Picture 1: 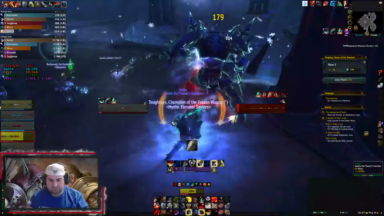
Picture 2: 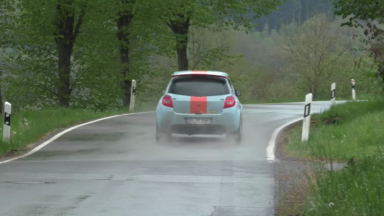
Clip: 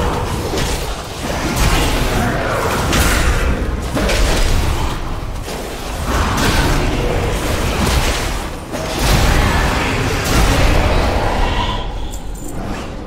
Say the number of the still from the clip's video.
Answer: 1